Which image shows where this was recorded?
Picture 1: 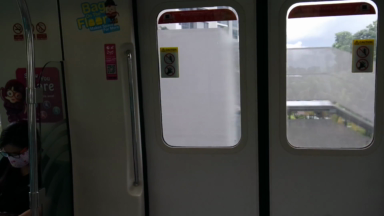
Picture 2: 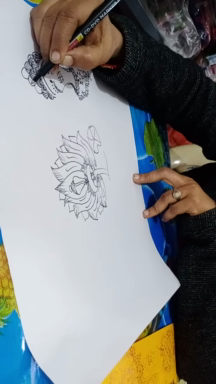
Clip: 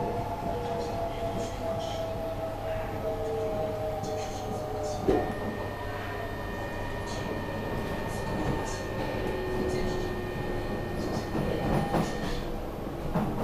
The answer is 1